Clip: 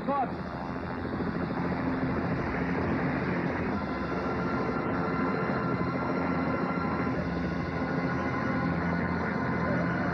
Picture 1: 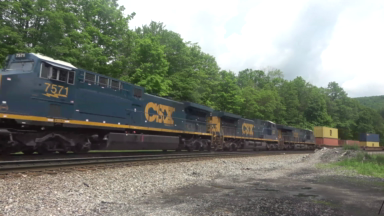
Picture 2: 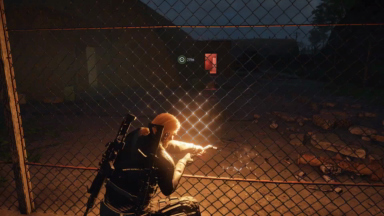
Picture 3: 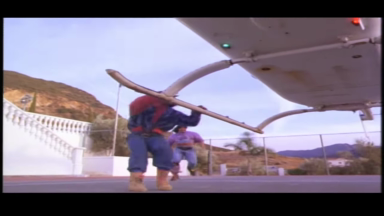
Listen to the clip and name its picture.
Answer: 3